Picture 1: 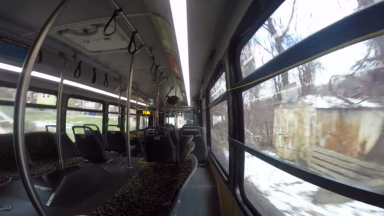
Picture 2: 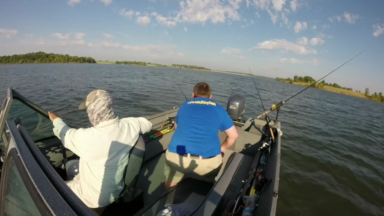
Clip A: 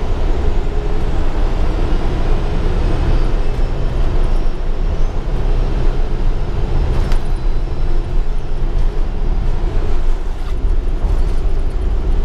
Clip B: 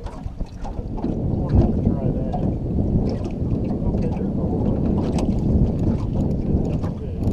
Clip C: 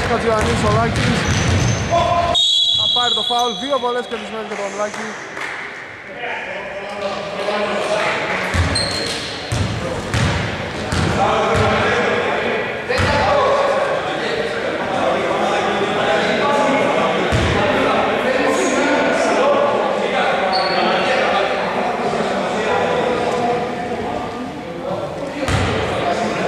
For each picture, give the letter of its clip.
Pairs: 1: A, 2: B